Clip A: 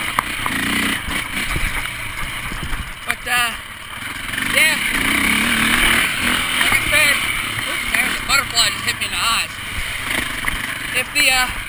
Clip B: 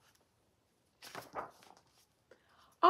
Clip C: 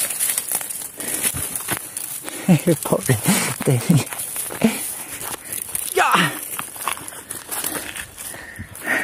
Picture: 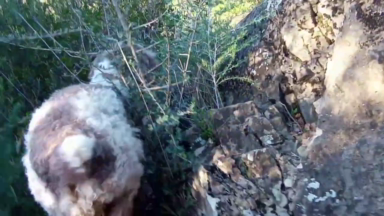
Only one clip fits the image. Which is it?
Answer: C